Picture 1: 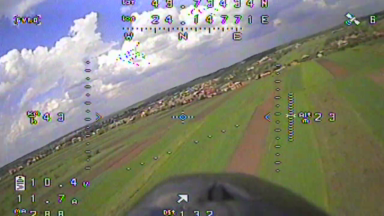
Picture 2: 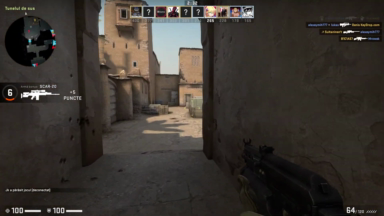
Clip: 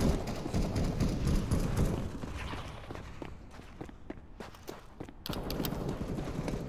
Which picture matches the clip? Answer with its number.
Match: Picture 2